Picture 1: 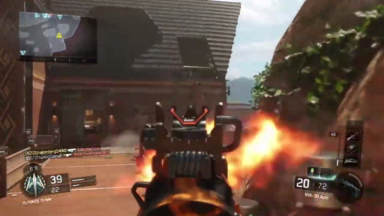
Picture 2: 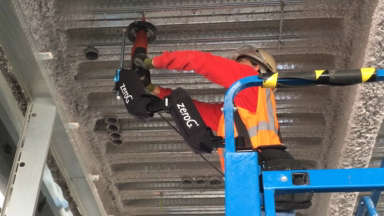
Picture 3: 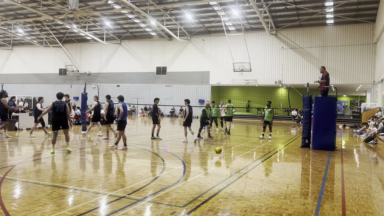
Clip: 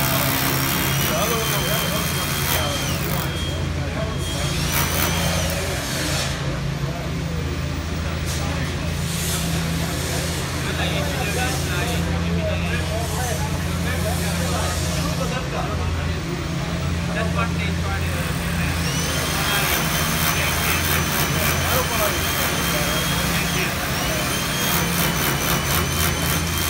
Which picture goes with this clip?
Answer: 2